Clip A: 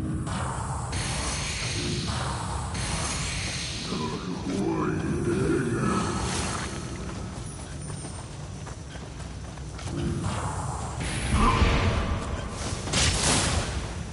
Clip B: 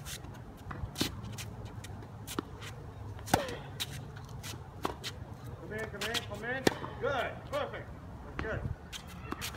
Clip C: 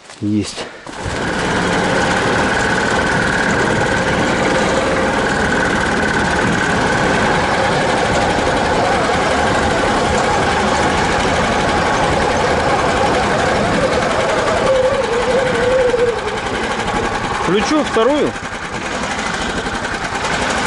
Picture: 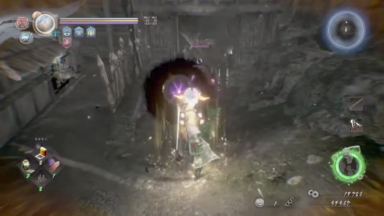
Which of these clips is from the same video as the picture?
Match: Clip A